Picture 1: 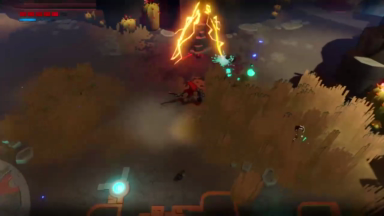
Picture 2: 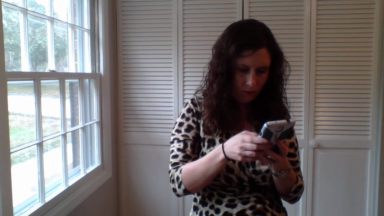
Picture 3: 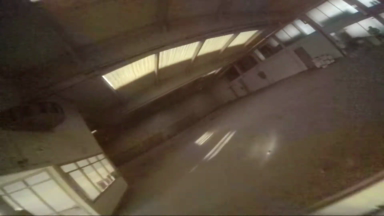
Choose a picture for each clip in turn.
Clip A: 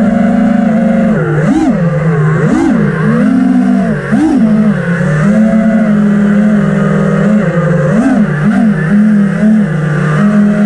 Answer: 3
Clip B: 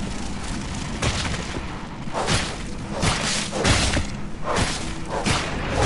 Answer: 1